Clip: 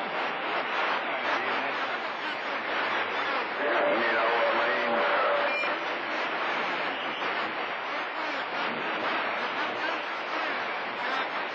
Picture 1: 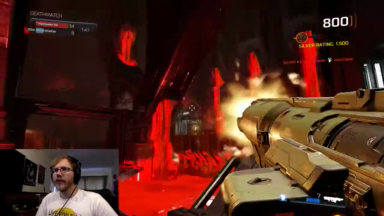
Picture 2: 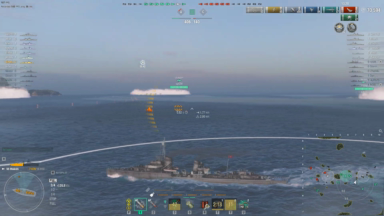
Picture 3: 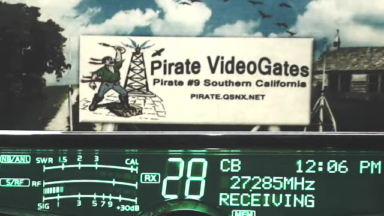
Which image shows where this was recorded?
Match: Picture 3